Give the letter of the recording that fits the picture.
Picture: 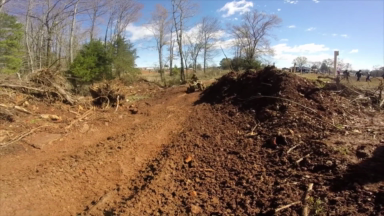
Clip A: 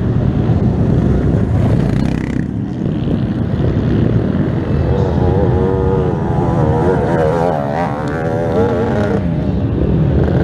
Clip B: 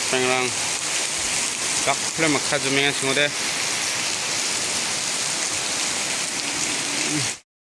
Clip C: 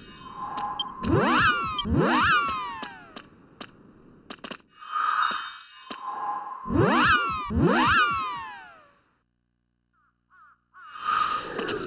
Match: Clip A